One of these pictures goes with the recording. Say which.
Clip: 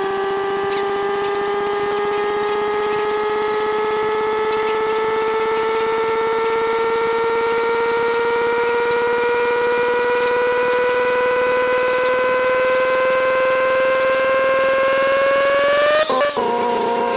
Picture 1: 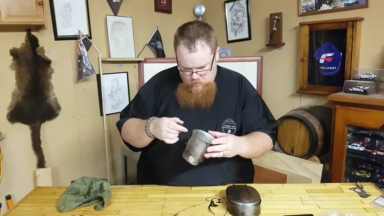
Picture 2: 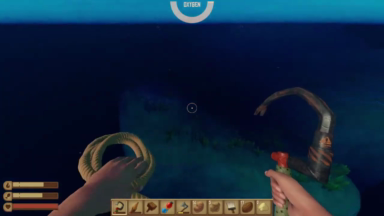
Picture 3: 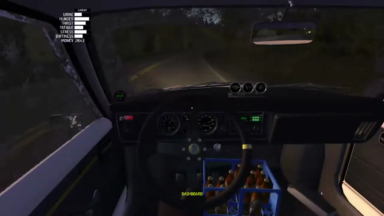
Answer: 3